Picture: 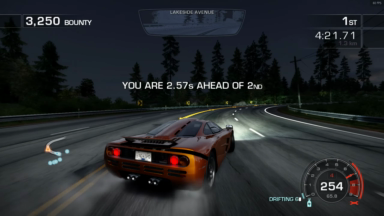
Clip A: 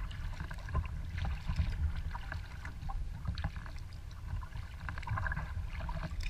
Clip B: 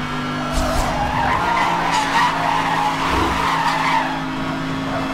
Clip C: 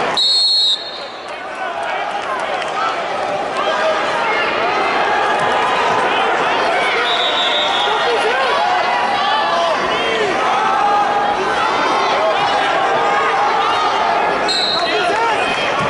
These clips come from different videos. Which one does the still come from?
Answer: B